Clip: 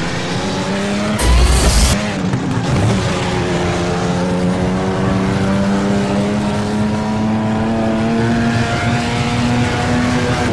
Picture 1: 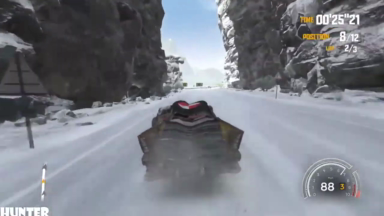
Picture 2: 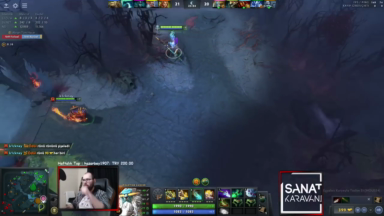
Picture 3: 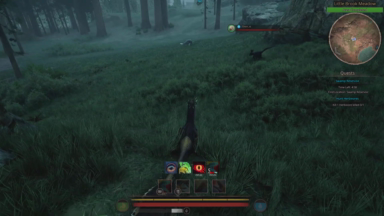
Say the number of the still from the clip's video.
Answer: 1